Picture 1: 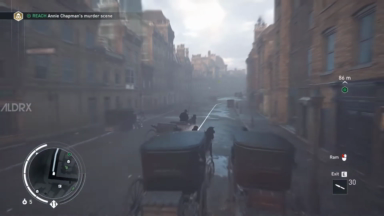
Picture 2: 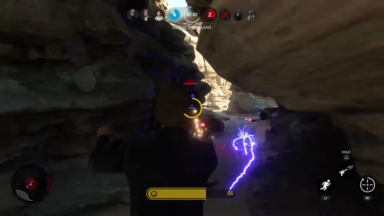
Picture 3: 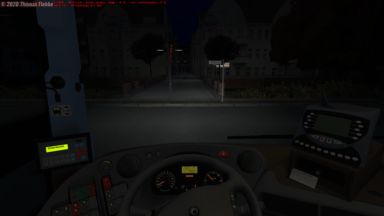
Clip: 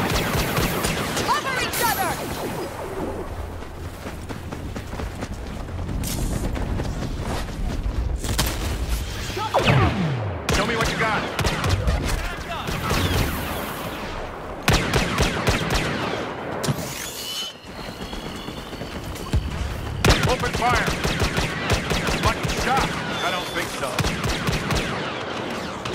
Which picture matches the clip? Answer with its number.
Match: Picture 2